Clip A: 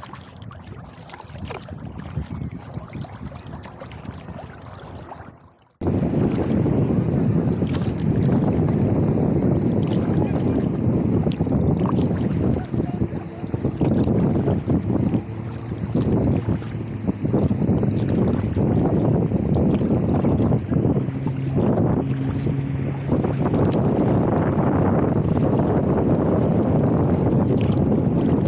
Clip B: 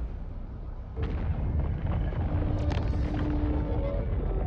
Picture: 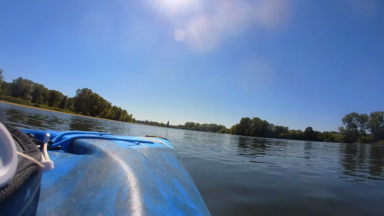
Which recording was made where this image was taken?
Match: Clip A